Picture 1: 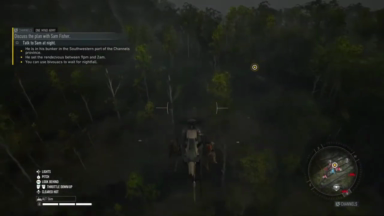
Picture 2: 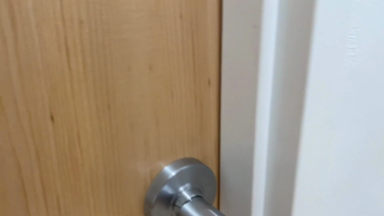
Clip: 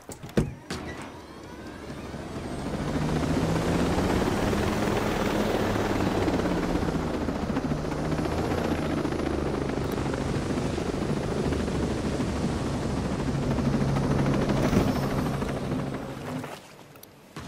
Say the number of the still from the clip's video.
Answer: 1